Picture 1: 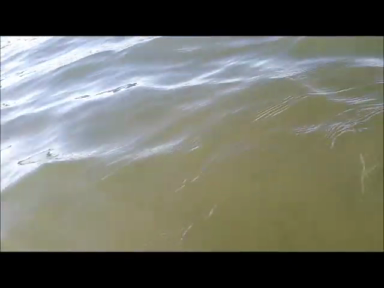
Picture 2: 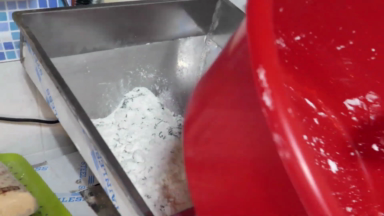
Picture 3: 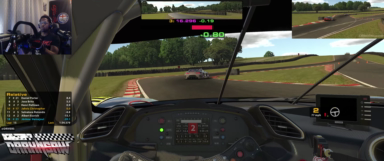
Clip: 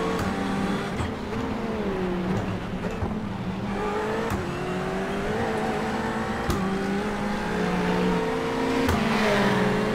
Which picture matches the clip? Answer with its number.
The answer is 3